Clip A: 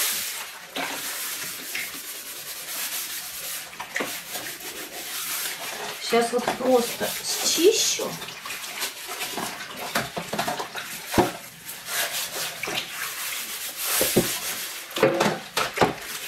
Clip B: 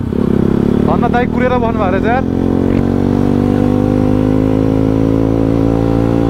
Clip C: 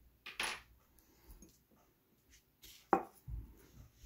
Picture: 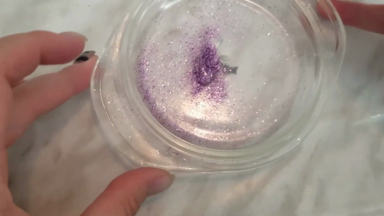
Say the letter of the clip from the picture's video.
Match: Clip C